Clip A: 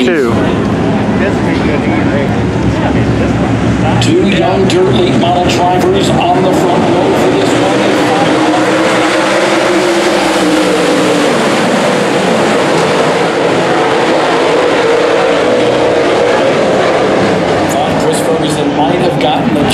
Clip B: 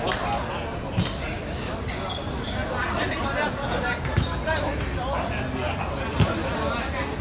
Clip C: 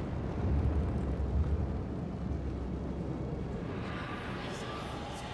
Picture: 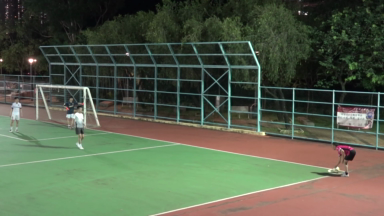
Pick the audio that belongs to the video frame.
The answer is B